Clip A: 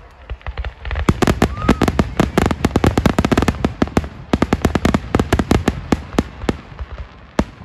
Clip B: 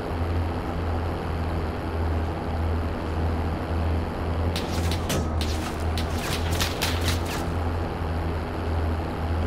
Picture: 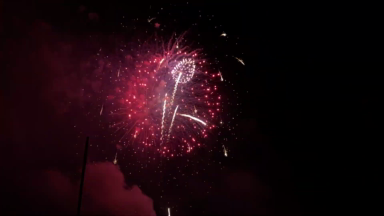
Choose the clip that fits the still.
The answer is A